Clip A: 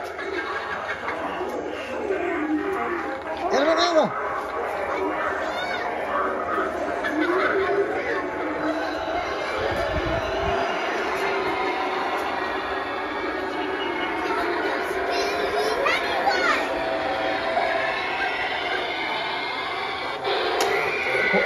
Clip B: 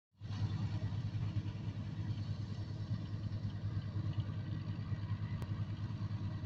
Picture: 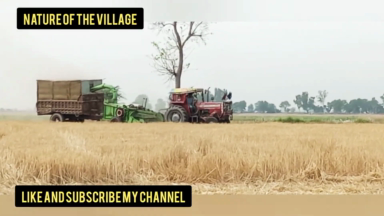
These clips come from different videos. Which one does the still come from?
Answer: B